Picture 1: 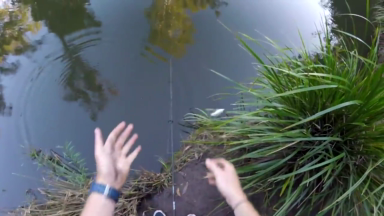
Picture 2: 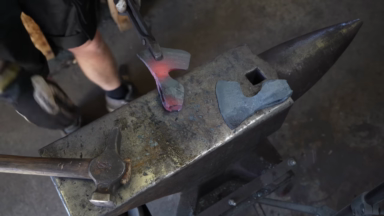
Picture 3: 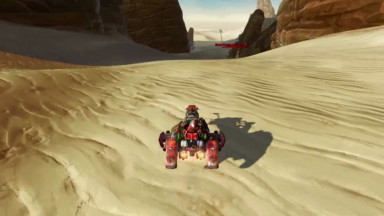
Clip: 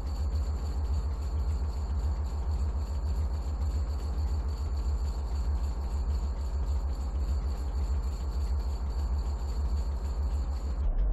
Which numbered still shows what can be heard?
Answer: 3